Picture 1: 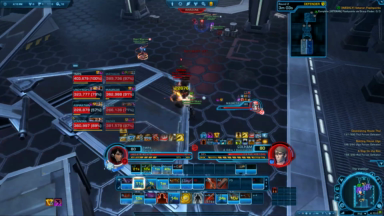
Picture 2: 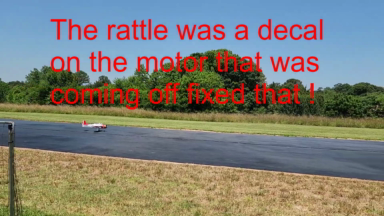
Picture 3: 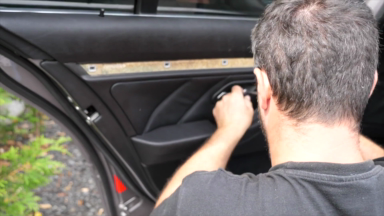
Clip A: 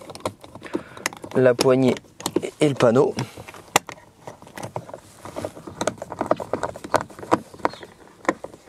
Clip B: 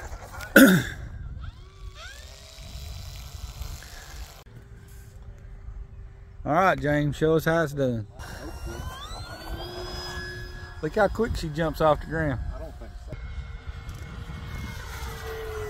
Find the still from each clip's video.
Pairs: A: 3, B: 2